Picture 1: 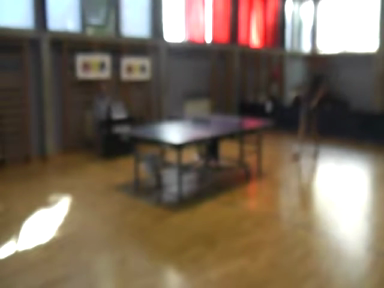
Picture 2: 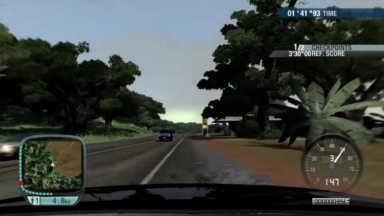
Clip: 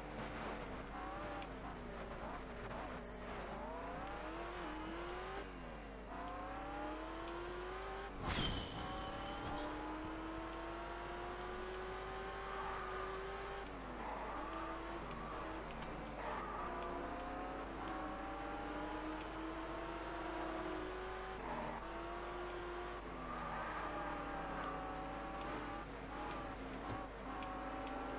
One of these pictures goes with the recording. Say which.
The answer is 2